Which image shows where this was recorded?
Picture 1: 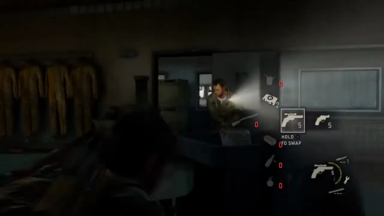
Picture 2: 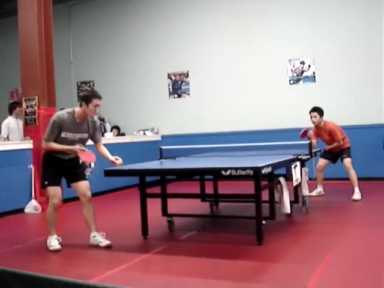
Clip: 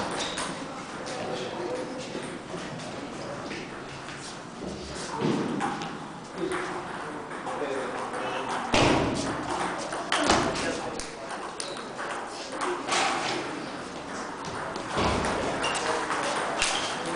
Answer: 2